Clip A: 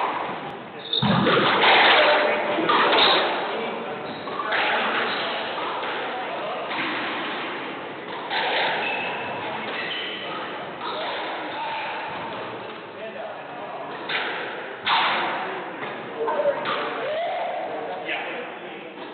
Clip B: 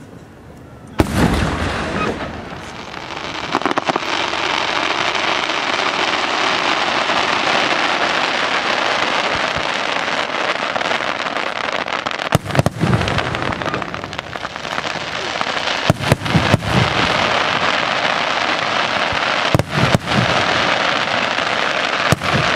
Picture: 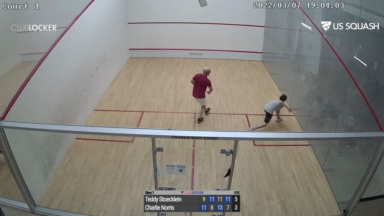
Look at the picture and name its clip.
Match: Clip A